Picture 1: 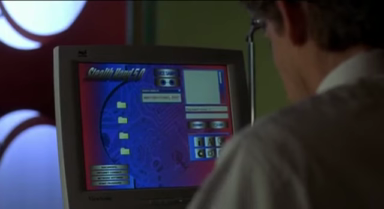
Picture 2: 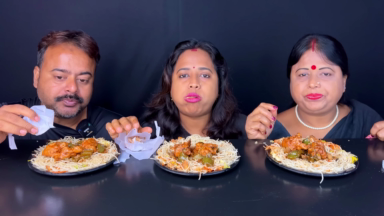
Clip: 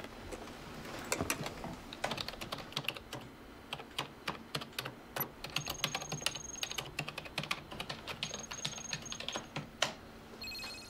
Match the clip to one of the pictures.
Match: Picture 1